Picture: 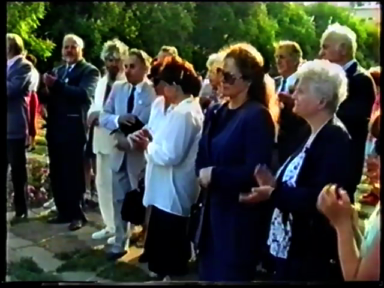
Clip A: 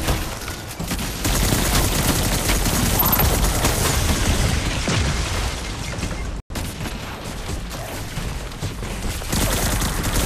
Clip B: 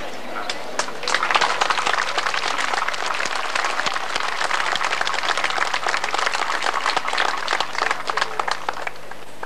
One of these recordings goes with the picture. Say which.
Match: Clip B